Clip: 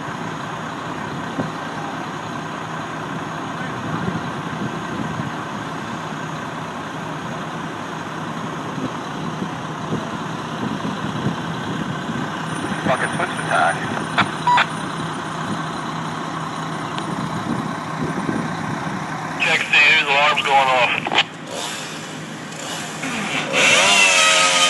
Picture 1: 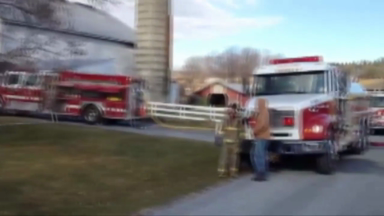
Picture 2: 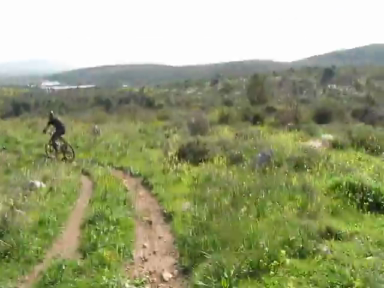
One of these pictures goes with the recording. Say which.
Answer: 1